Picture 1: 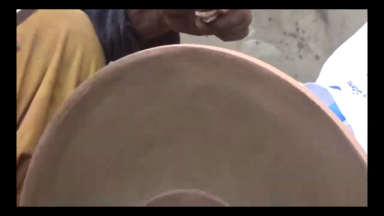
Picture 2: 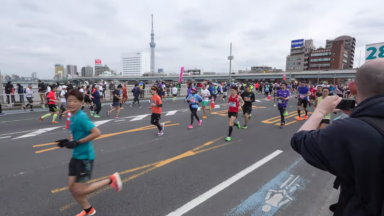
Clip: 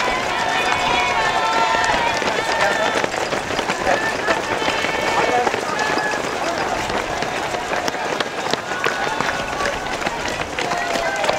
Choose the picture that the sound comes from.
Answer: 2